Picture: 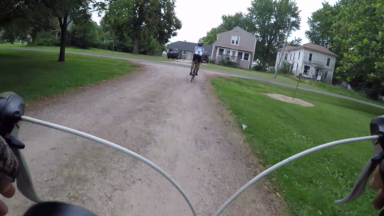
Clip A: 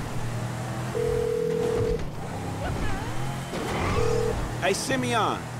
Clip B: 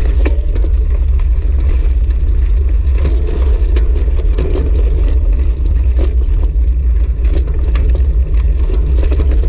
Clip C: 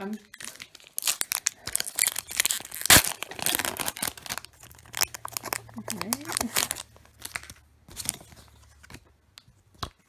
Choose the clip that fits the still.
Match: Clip B